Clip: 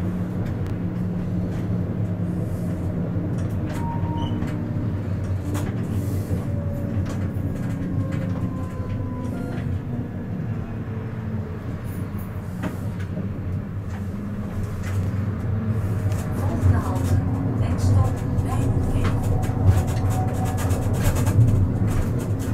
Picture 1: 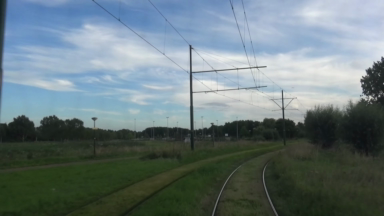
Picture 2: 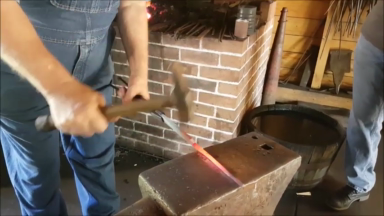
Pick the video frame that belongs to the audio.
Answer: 1